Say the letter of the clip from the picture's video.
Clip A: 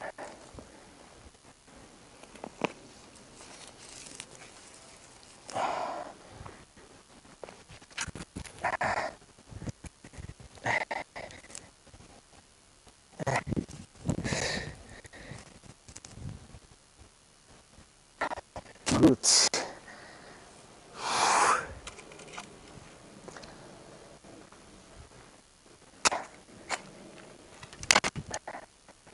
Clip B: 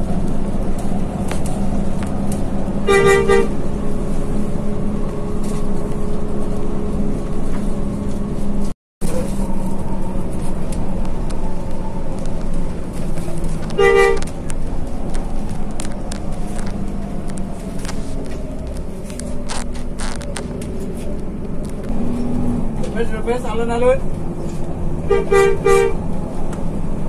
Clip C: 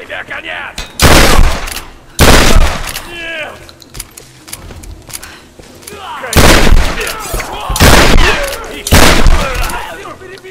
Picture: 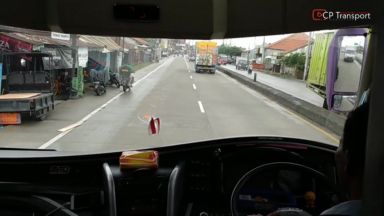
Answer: B